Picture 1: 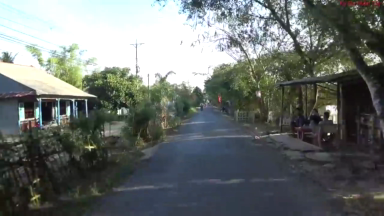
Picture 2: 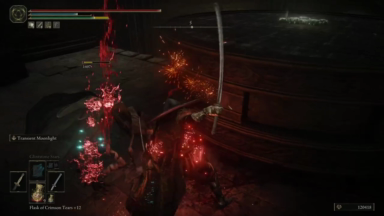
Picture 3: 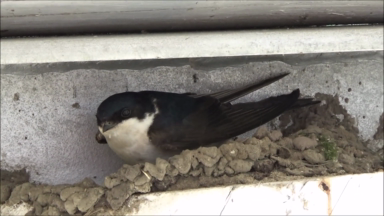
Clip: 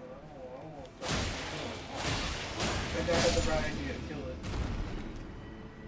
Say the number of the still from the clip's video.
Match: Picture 2